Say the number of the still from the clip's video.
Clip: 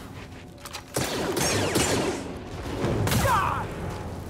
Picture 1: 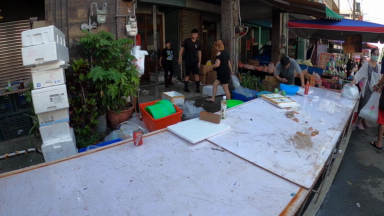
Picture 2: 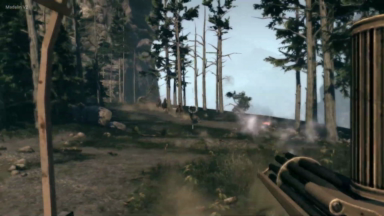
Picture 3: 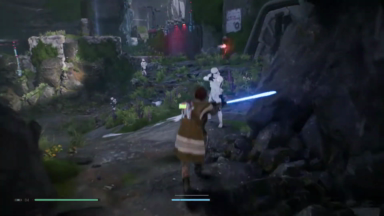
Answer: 3